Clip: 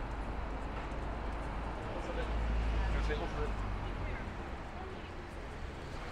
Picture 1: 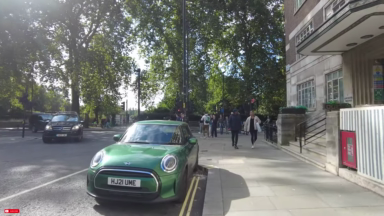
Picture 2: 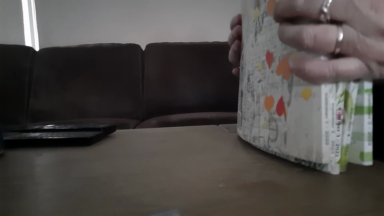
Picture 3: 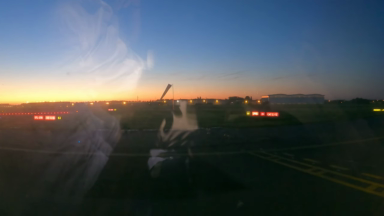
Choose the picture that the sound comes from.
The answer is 1